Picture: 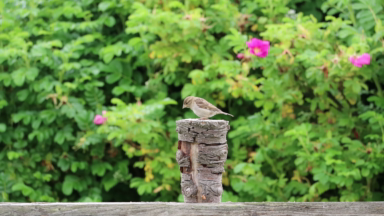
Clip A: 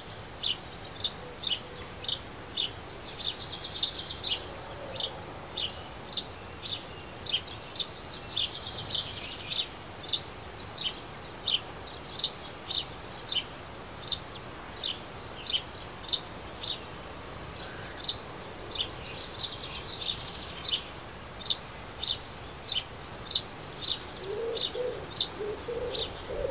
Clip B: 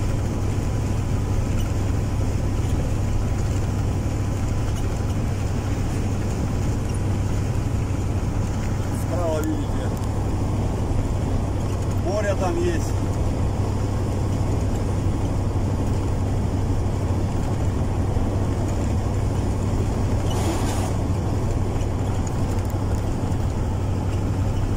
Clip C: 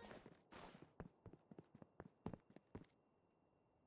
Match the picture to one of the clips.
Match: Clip A